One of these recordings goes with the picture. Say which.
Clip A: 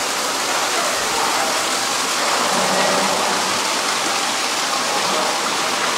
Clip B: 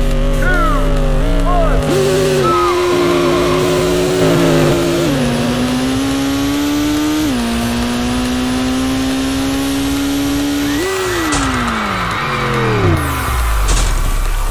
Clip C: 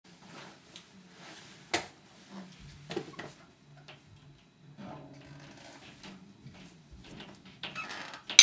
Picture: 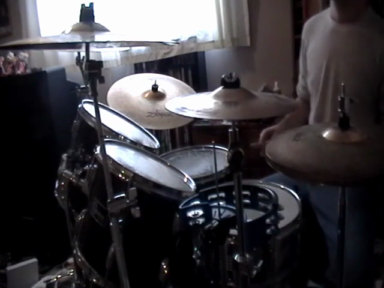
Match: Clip C